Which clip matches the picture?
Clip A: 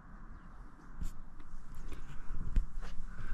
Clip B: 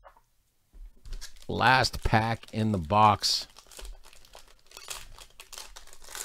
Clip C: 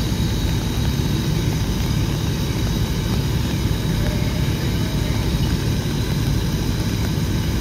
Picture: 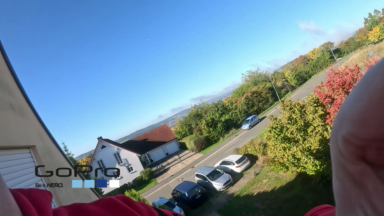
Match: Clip A